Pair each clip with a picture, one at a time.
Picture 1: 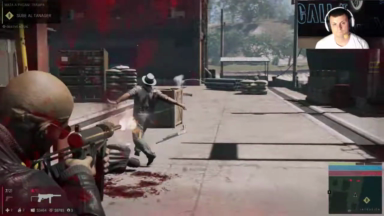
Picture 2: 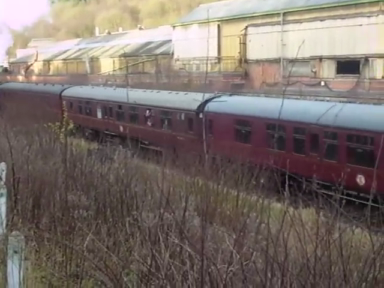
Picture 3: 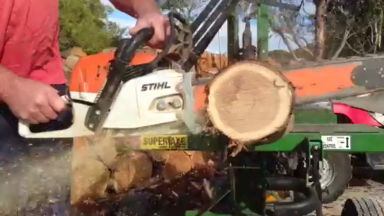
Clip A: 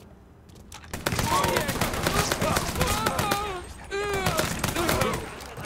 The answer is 1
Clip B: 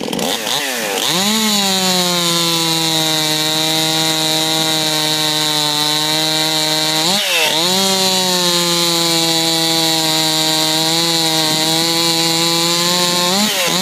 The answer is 3